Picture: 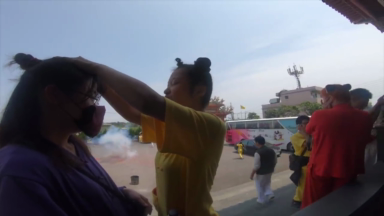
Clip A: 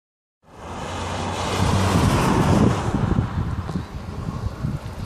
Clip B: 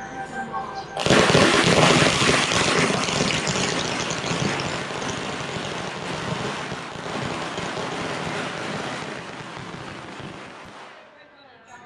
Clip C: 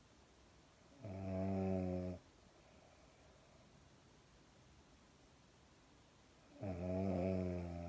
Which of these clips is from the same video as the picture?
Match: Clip B